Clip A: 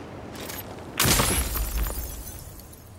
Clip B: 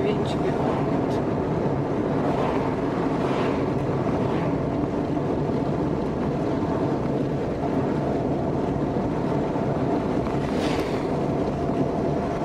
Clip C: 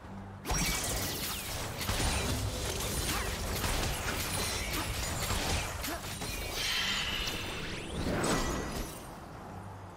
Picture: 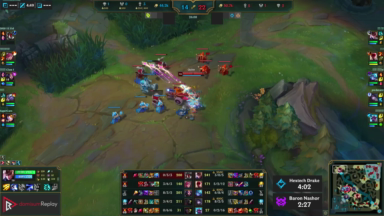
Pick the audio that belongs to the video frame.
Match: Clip C